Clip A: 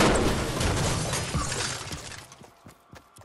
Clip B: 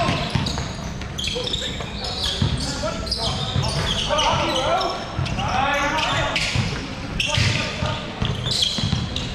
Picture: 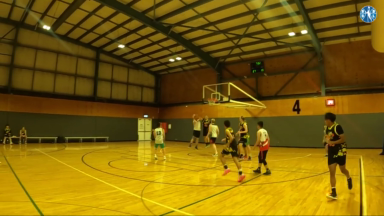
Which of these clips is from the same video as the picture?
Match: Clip B